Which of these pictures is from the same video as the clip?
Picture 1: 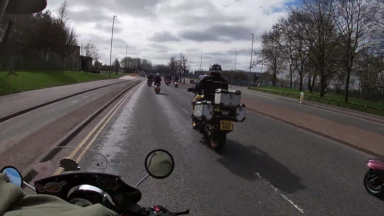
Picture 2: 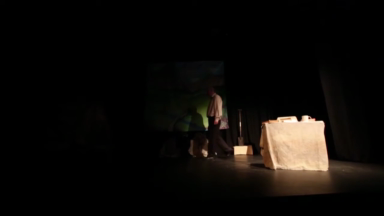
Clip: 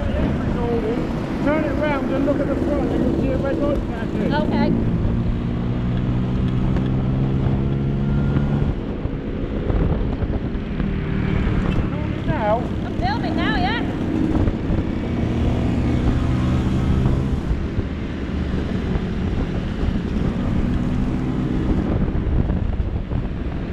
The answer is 1